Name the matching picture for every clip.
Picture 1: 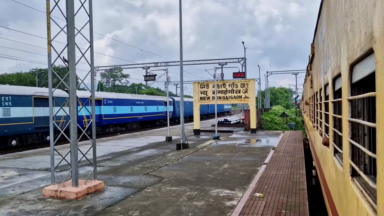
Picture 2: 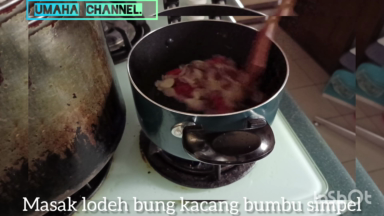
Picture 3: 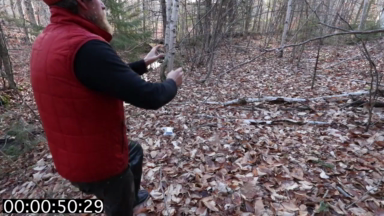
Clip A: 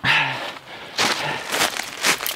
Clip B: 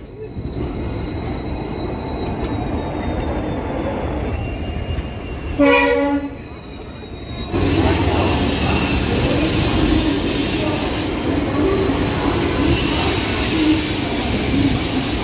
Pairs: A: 3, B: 1